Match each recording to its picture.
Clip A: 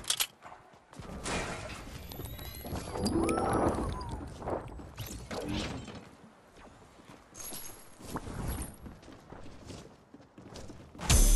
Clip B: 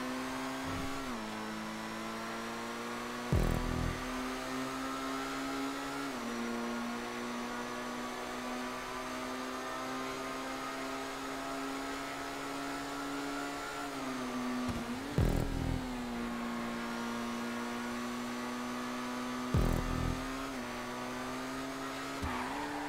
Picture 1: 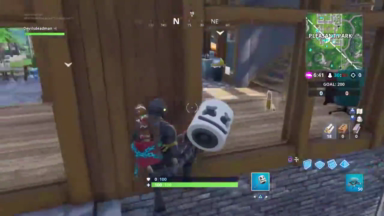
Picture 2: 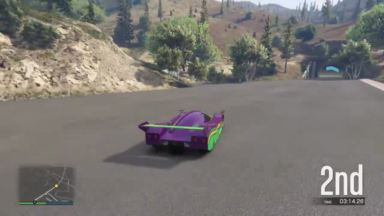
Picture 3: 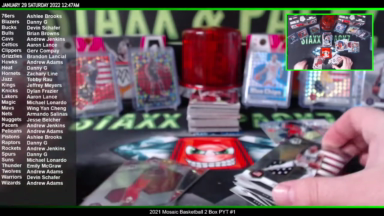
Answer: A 1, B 2